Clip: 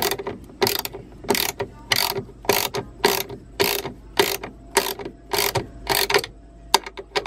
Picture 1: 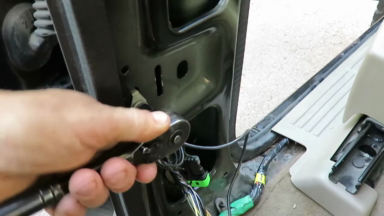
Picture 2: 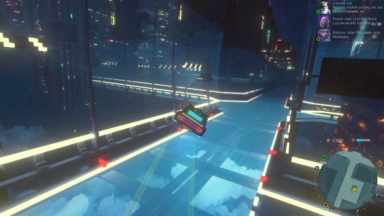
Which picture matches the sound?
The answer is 1